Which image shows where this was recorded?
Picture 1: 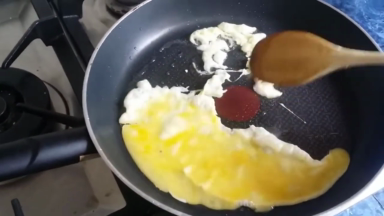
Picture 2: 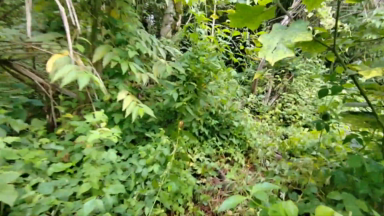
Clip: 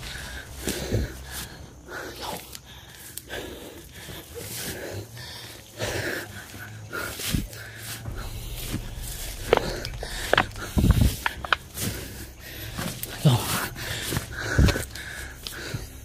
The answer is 2